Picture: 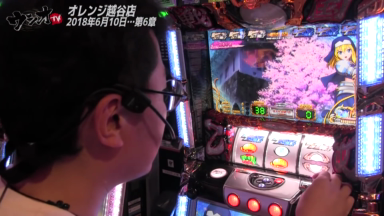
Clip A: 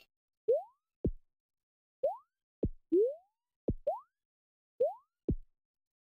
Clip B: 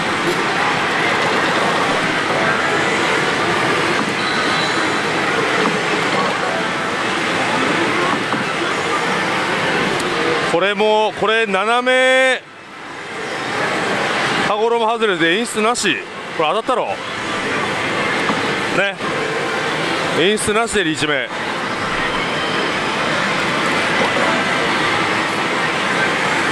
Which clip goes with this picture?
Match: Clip B